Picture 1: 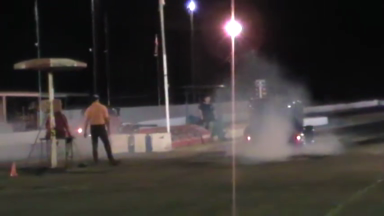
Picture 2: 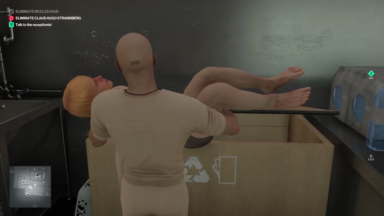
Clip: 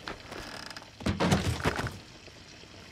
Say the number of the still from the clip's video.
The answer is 2